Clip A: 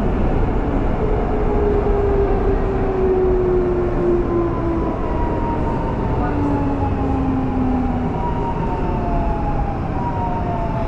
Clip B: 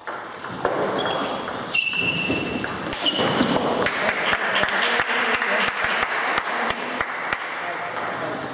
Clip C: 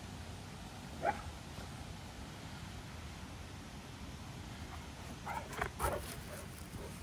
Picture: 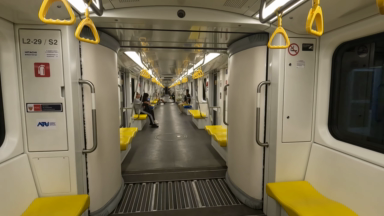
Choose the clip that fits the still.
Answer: A